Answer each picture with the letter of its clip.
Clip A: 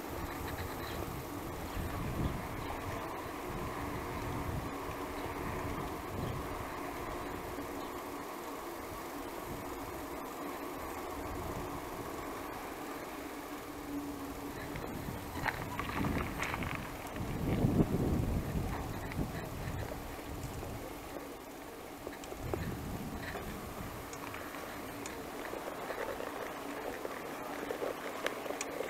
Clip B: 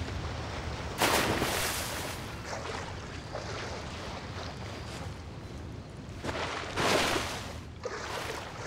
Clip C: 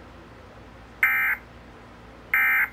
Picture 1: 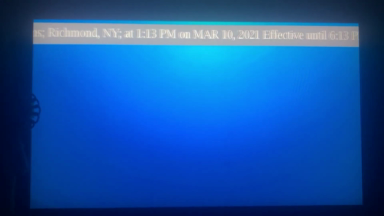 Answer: C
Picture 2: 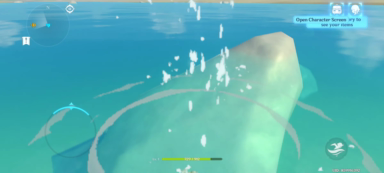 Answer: B